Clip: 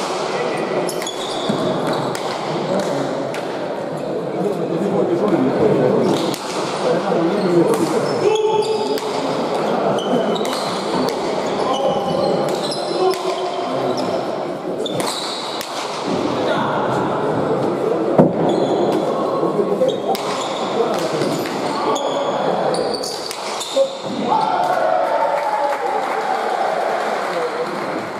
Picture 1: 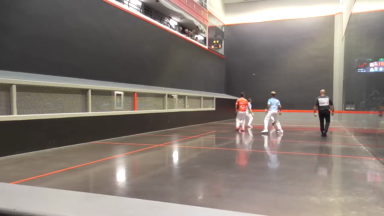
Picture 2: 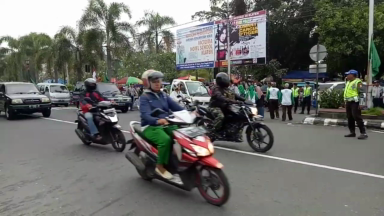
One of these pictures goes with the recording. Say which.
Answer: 1